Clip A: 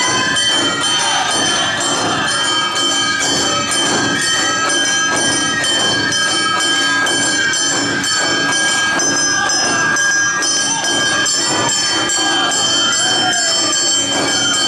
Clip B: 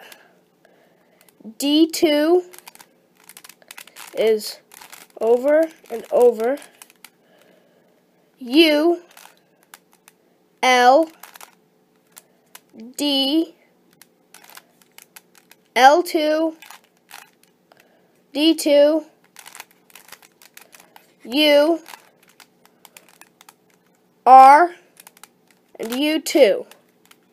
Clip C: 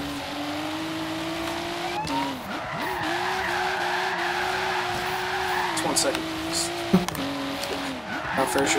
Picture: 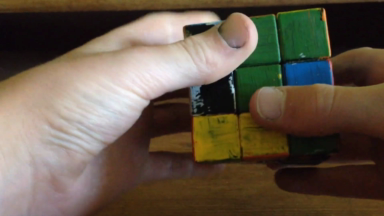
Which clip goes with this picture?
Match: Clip B